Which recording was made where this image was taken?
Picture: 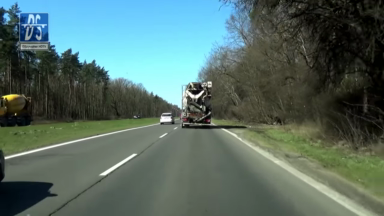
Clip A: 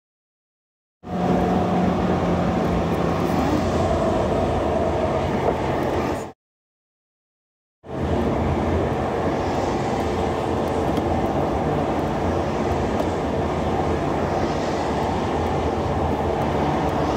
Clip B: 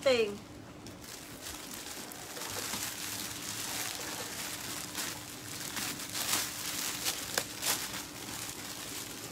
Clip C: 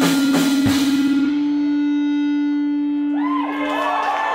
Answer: A